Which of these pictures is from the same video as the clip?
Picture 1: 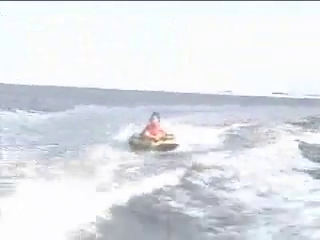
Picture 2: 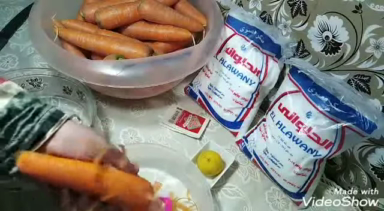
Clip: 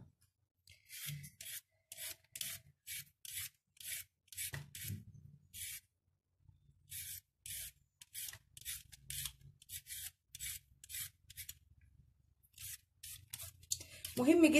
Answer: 2